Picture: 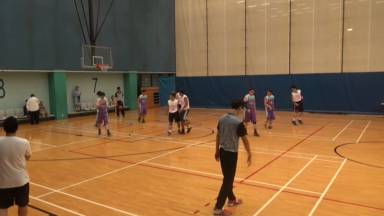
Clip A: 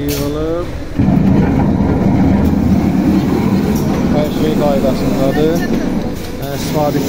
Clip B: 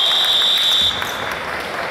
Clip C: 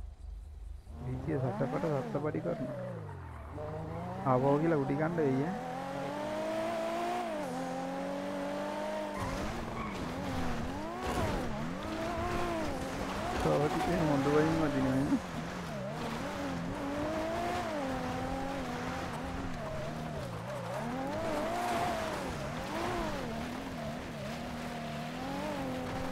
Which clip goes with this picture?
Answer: B